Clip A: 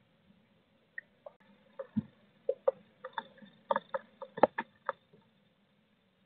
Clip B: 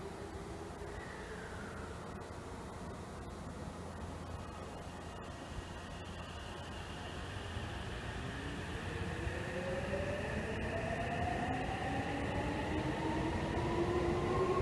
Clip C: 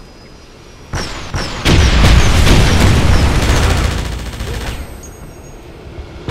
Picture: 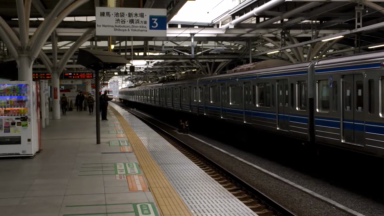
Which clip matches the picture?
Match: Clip B